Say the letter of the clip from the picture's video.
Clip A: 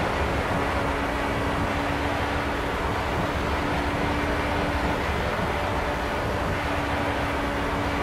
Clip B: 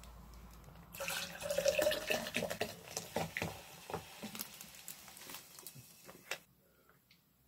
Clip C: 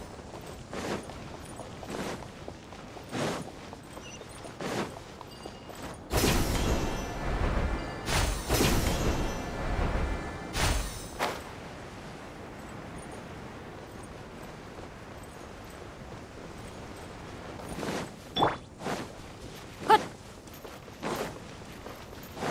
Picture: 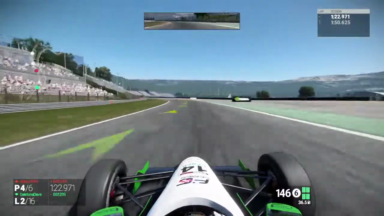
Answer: A